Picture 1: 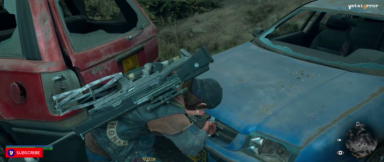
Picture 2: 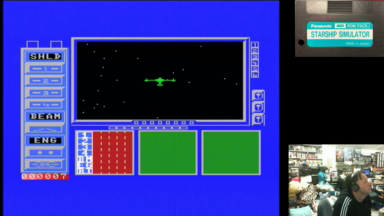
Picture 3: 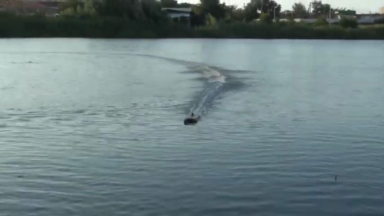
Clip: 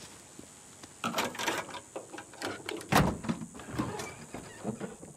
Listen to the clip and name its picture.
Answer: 1